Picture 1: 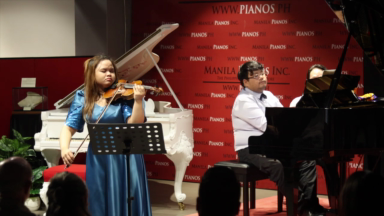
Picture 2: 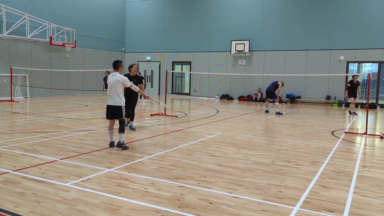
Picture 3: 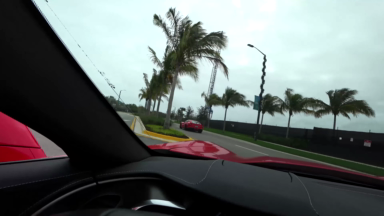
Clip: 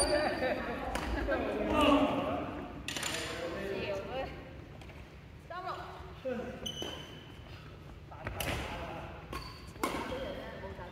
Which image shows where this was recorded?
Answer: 2